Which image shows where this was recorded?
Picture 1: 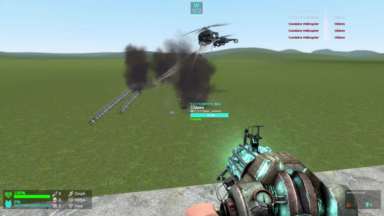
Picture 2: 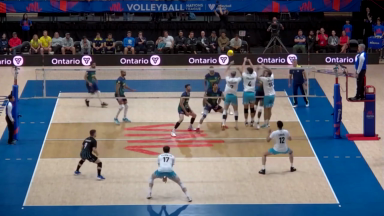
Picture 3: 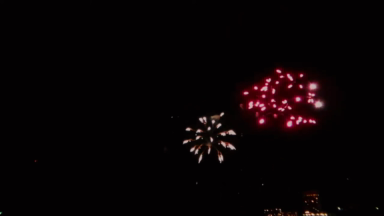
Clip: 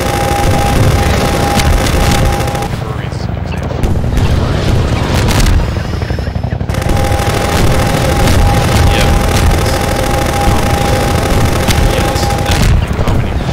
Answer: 1